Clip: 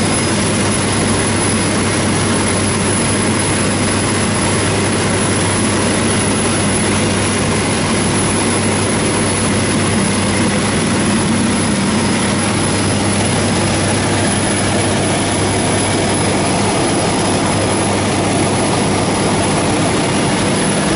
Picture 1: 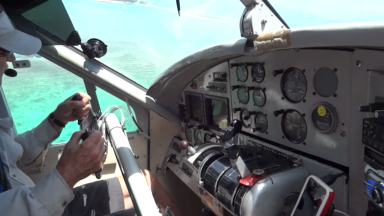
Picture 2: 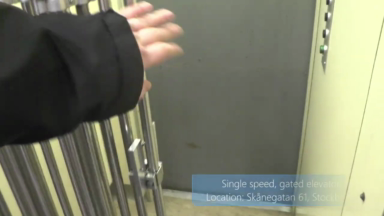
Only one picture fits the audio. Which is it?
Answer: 1